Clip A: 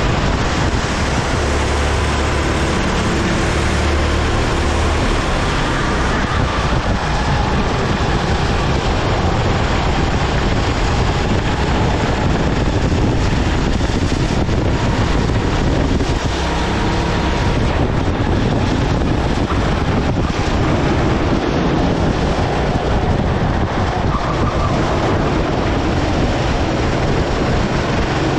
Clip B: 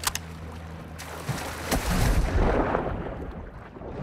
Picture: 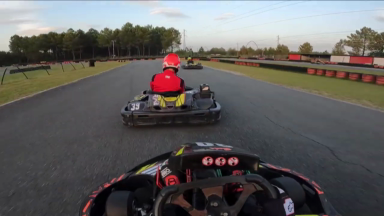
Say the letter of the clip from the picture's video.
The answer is A